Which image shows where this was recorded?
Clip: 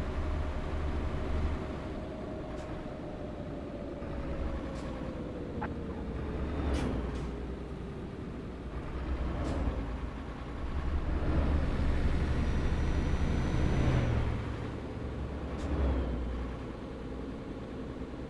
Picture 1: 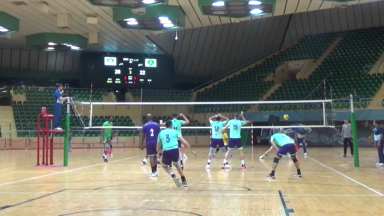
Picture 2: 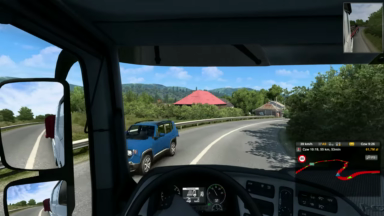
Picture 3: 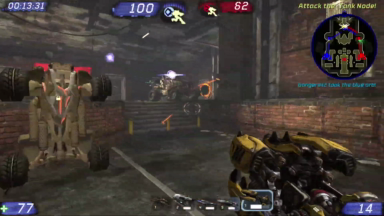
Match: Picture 2